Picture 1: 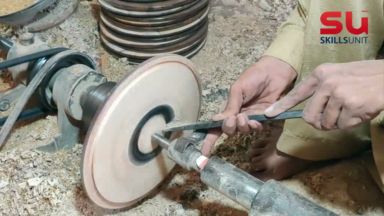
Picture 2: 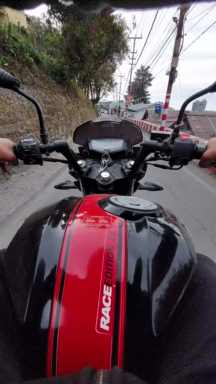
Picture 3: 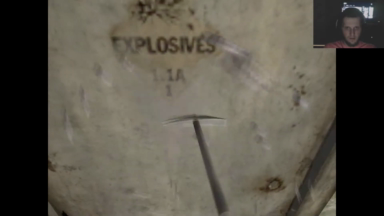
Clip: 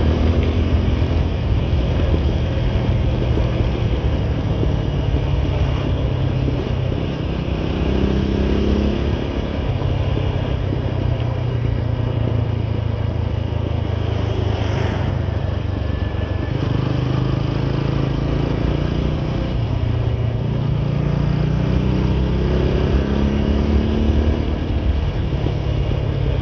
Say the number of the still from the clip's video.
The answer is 2